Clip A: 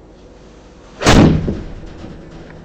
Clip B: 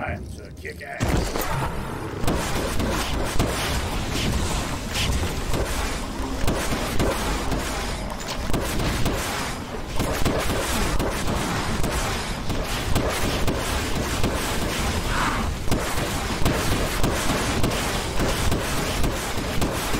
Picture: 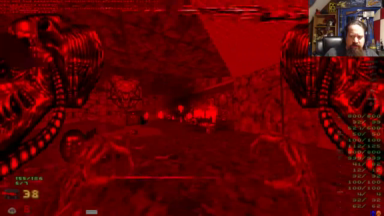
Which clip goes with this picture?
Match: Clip B